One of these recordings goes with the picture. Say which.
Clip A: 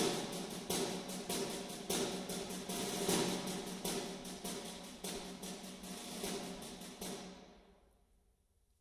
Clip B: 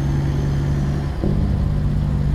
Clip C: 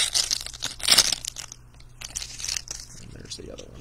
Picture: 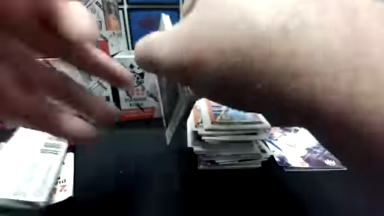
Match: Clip C